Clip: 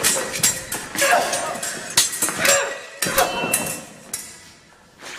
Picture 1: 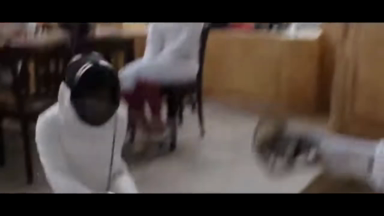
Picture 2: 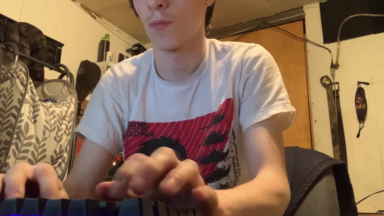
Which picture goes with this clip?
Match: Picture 1